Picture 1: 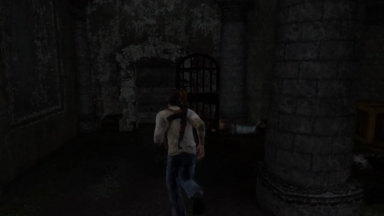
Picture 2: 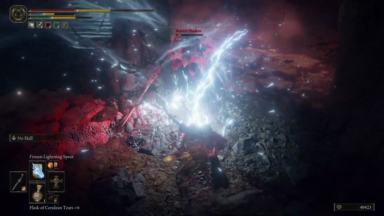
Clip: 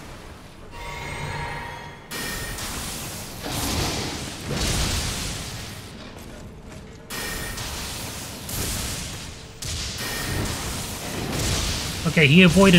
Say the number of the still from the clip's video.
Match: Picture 2